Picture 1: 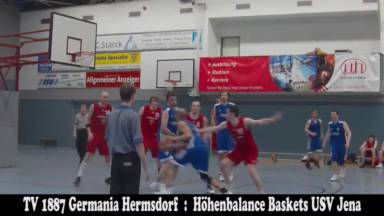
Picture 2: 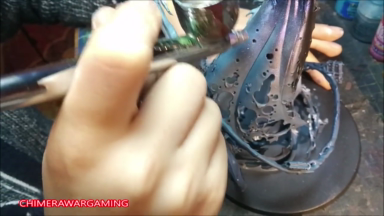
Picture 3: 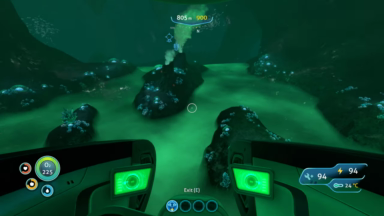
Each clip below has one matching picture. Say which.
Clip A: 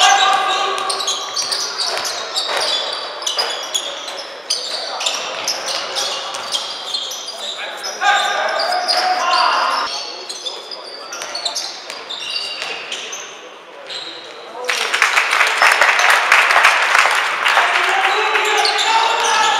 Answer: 1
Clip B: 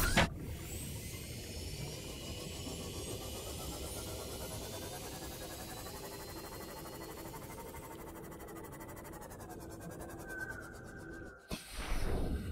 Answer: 3